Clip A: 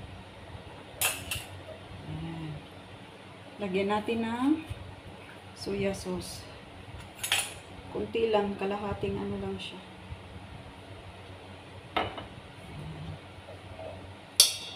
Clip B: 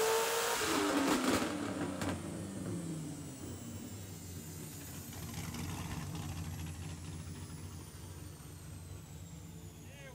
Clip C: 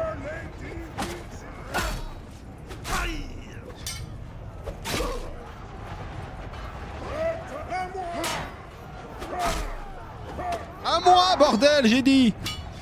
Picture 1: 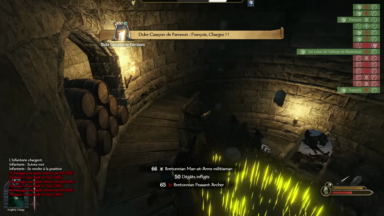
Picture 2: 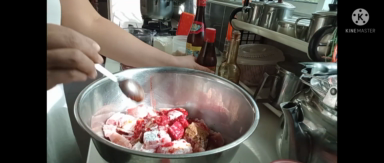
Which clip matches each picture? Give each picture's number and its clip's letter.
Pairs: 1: C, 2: A